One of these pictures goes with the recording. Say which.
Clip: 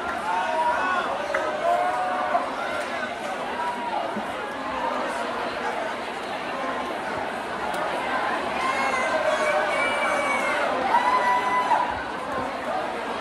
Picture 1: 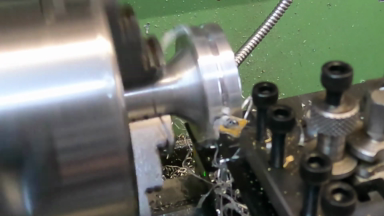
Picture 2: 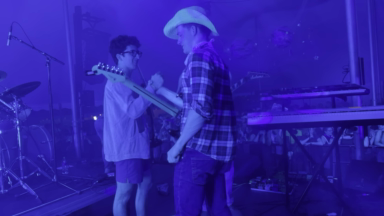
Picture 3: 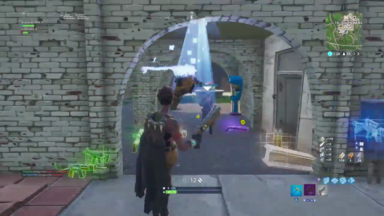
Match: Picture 2